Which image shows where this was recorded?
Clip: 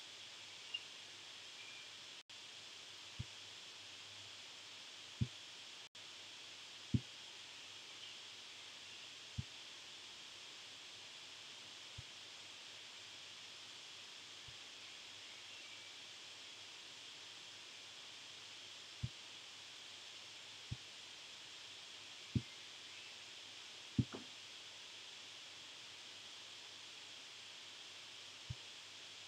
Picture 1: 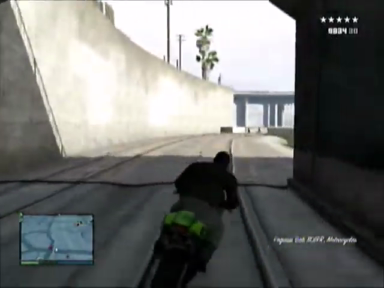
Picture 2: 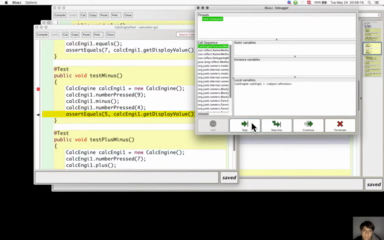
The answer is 2